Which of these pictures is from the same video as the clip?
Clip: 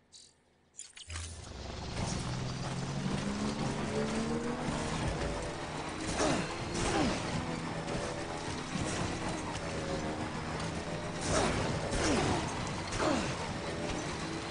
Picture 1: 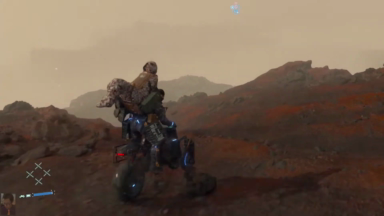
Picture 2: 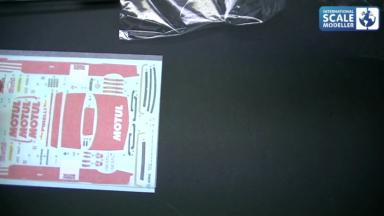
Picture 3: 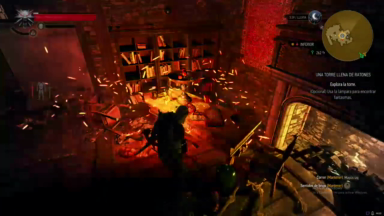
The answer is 1